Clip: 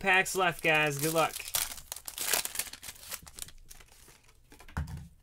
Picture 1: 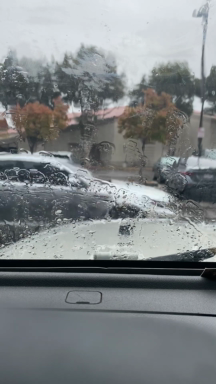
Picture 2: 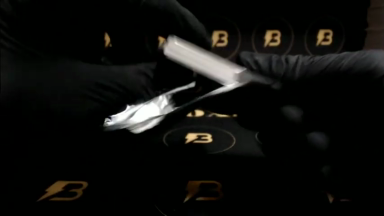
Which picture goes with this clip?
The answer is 2